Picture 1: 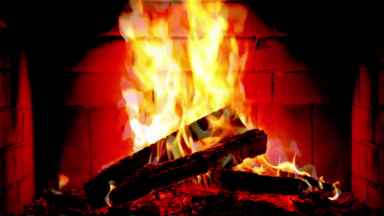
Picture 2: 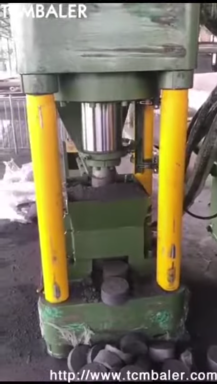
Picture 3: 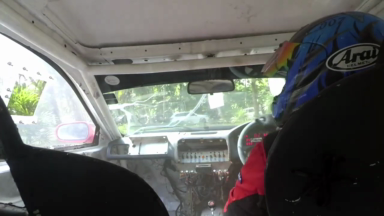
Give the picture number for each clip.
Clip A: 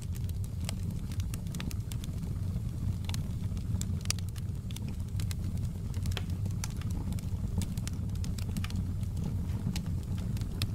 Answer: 1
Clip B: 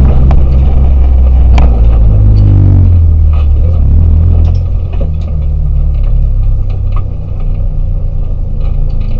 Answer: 3